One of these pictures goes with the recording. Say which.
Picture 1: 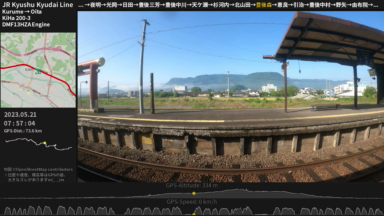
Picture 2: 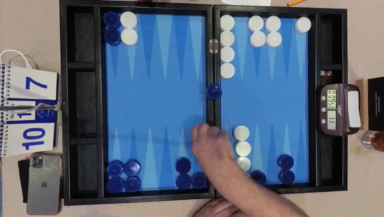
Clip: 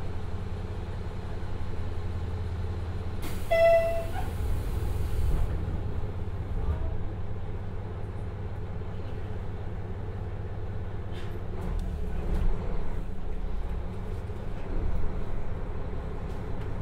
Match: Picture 1